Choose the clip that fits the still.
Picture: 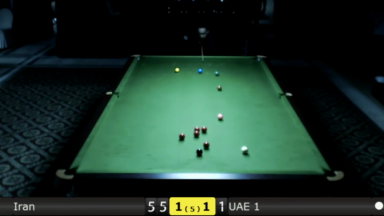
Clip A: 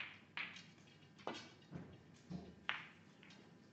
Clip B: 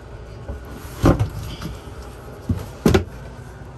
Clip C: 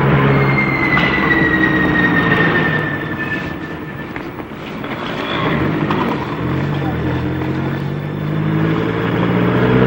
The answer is A